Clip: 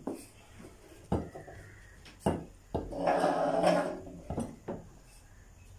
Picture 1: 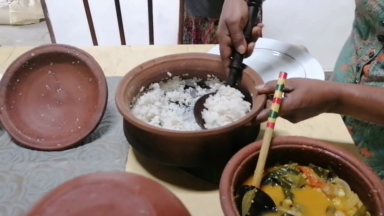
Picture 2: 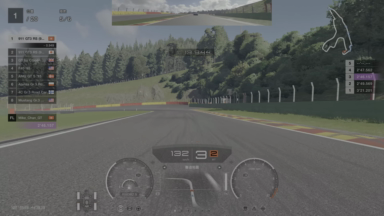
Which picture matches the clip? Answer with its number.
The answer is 1